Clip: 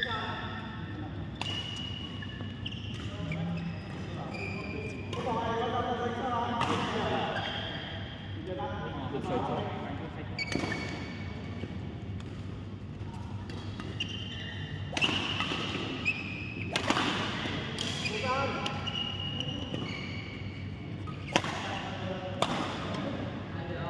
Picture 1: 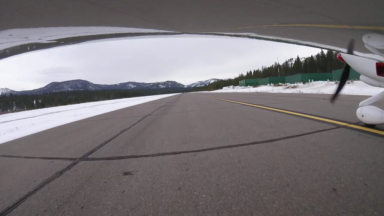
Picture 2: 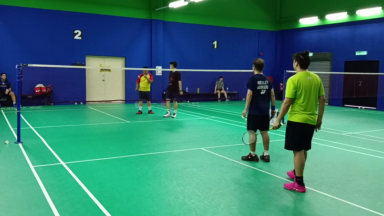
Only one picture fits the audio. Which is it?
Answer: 2